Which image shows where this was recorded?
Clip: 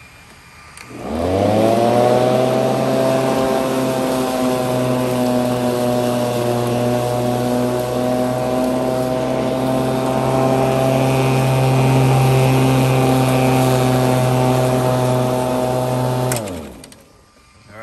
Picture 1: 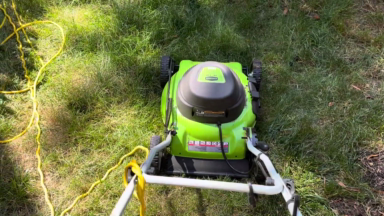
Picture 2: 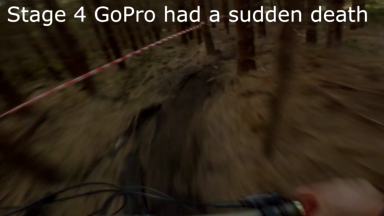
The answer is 1